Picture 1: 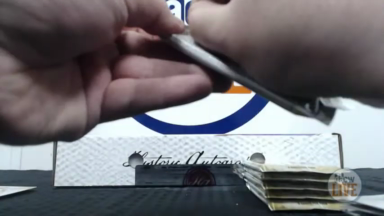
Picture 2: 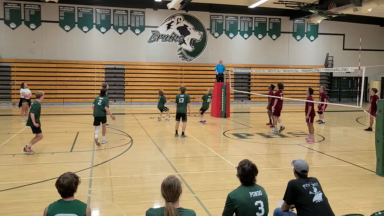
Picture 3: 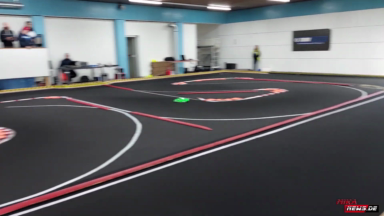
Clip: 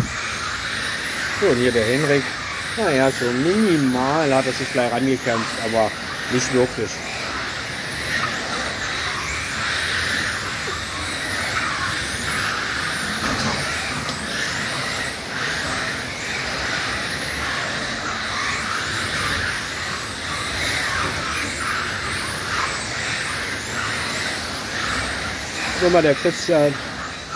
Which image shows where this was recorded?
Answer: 3